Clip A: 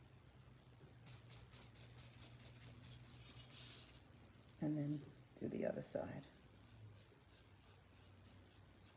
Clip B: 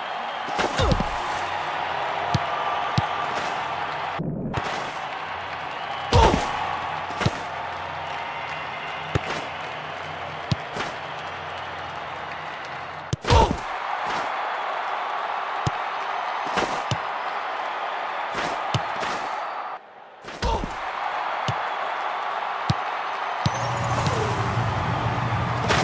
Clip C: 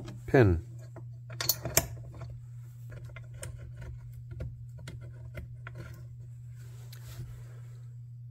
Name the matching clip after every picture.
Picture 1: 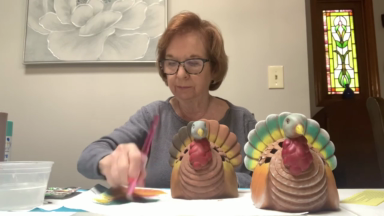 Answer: A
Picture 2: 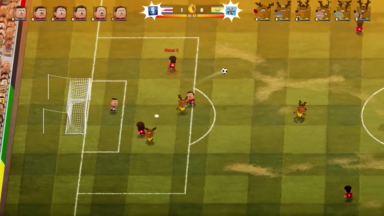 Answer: B